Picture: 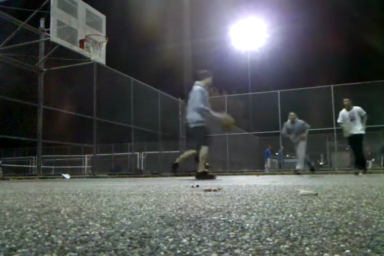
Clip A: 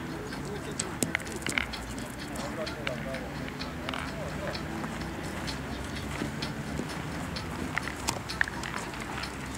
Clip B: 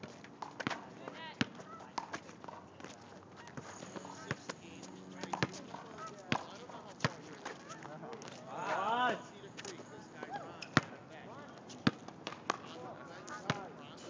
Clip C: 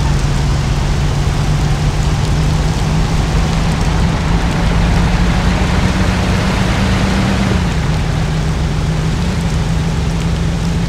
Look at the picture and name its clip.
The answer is B